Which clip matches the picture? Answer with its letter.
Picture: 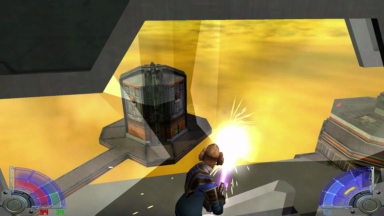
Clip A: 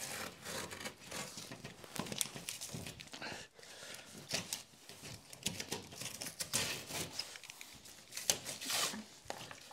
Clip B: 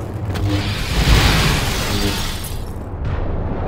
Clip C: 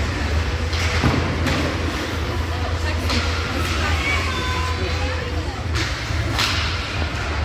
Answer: B